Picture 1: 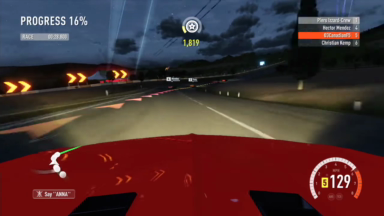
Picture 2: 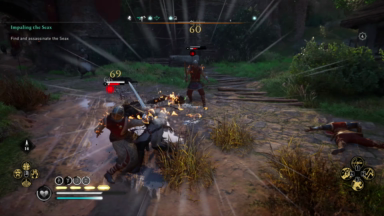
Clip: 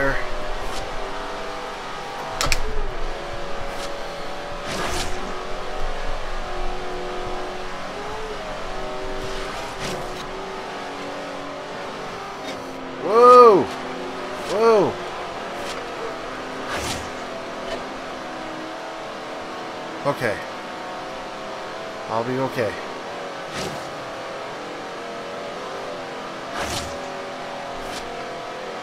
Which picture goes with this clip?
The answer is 1